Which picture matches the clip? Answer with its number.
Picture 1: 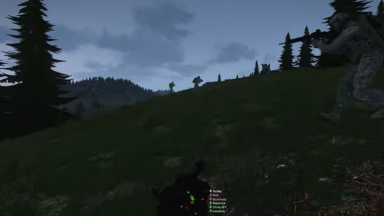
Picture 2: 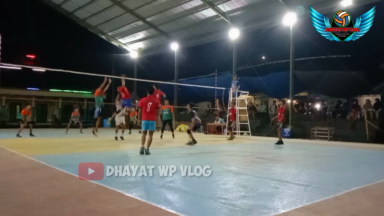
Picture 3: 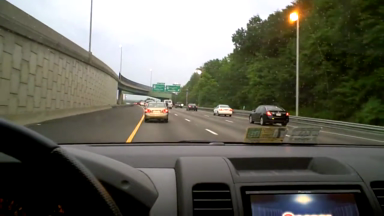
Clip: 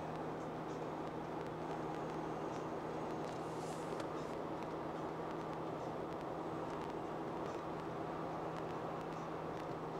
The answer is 3